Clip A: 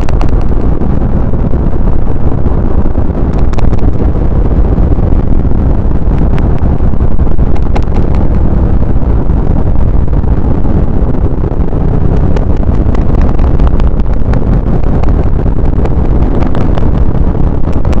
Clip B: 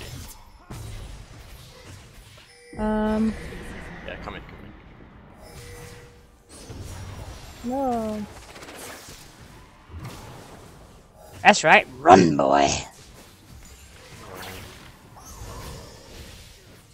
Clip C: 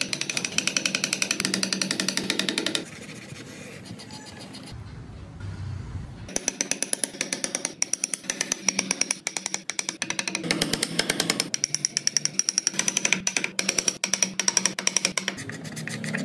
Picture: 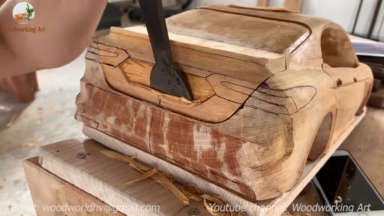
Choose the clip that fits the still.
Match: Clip C